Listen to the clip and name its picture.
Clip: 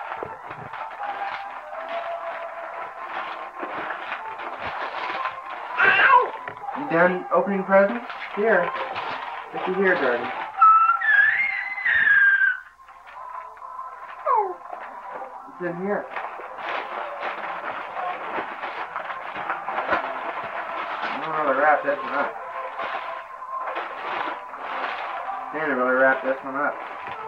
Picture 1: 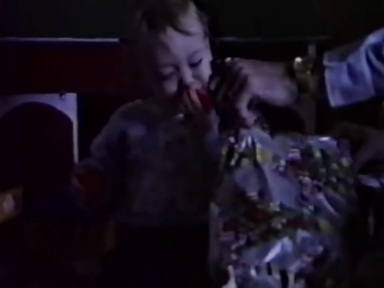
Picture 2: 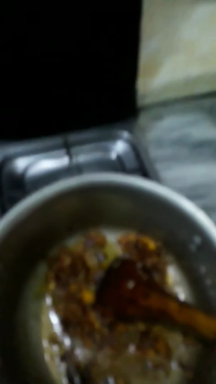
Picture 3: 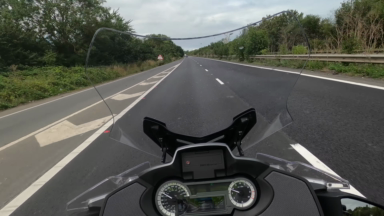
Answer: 1